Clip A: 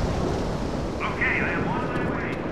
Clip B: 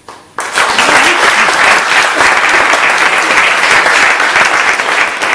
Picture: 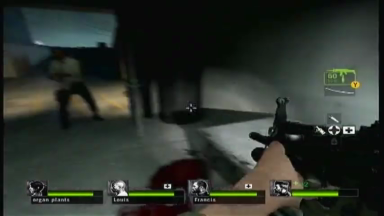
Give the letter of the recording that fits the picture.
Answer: A